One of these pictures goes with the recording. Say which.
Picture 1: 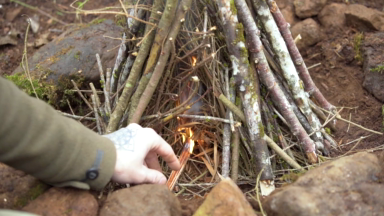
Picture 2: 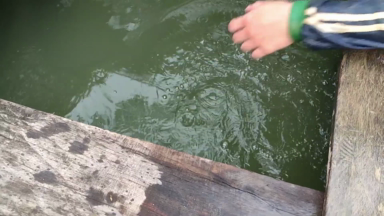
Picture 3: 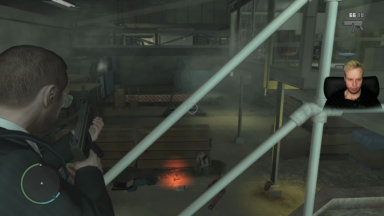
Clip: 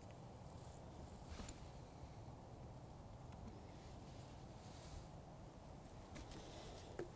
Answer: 1